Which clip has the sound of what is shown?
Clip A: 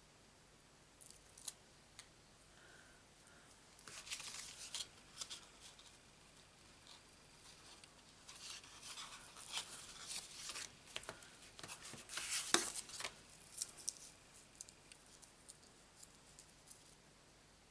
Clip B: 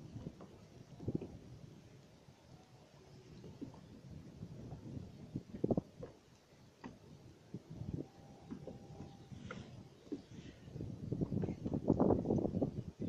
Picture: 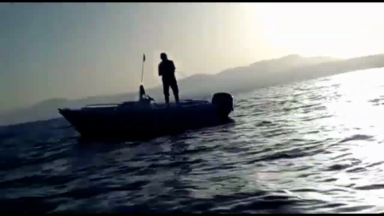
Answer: B